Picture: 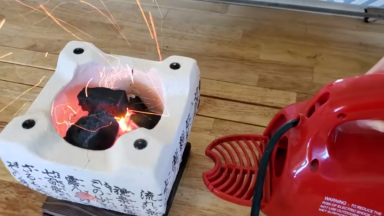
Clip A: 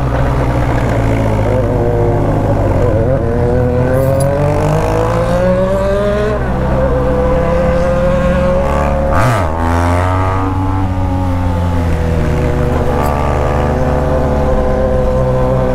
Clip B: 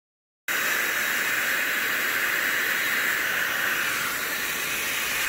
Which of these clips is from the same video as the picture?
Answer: B